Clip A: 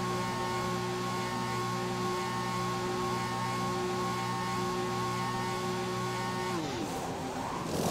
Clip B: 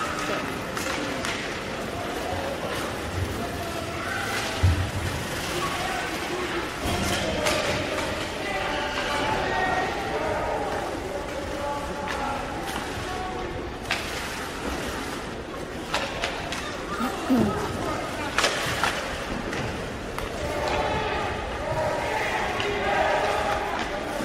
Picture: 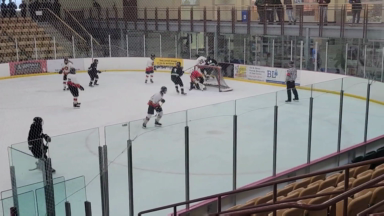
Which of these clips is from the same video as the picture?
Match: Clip B